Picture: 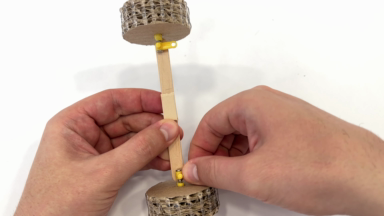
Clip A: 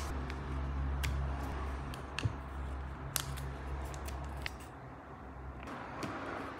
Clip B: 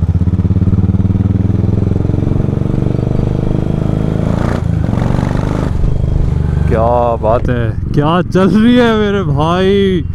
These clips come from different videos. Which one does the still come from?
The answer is A